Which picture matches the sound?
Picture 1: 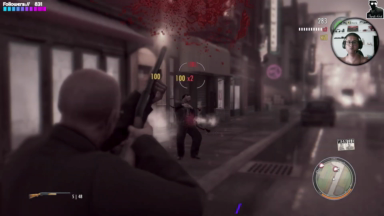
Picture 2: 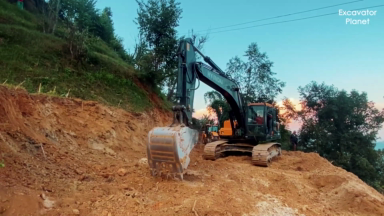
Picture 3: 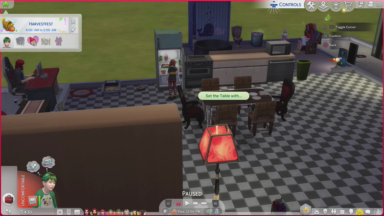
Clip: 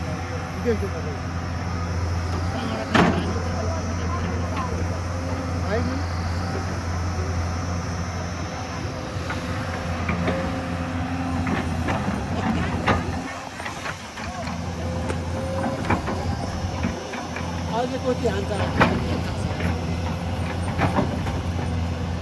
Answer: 2